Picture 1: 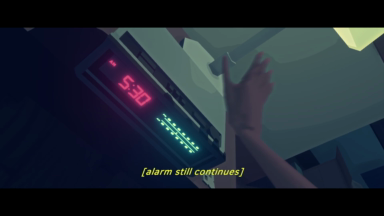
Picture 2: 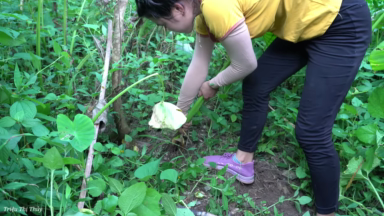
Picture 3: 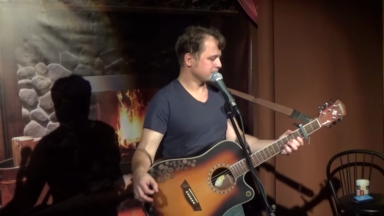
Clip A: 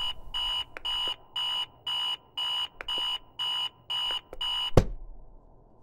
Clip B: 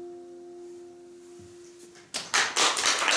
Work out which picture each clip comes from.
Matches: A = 1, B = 3